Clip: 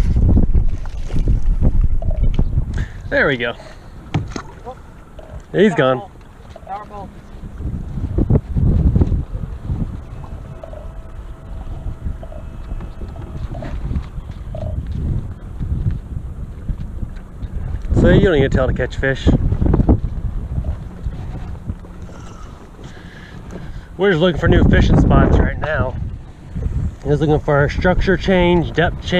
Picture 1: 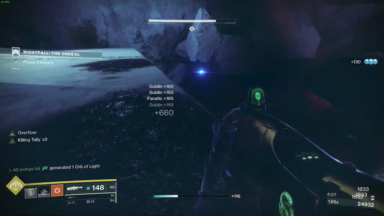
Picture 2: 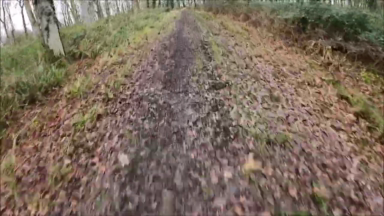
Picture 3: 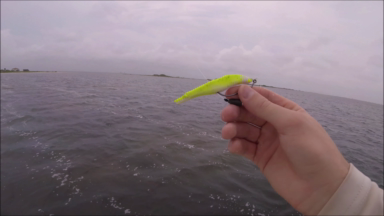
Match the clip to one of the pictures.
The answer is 3